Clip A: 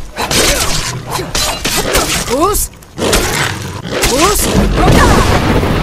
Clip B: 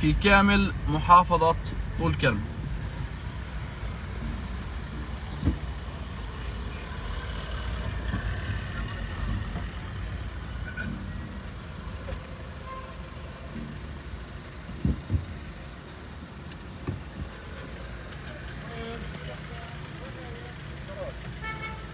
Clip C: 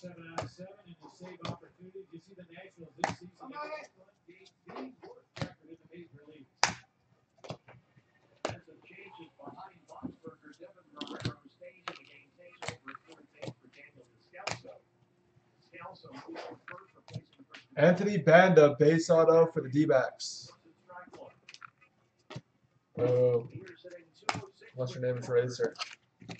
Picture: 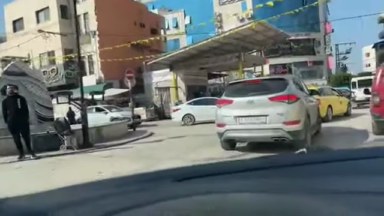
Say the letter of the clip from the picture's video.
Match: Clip B